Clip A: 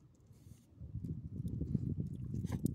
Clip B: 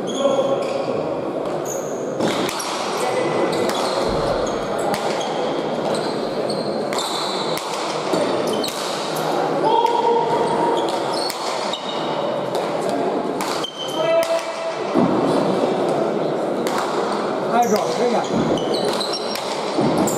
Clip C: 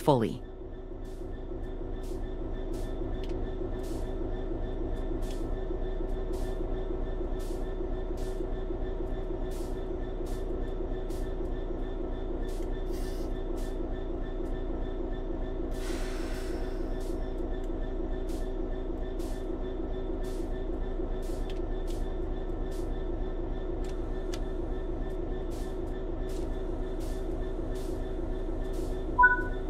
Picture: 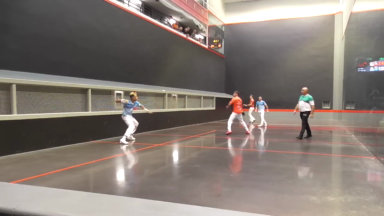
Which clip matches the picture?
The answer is B